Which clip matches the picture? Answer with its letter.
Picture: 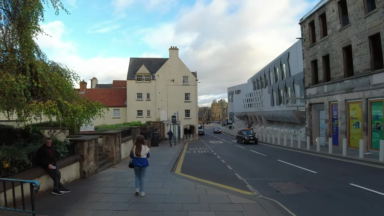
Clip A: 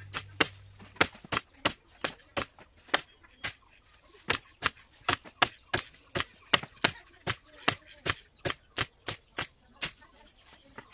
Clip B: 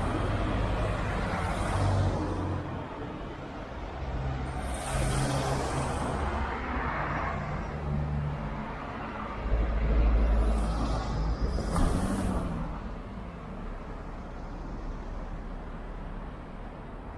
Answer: B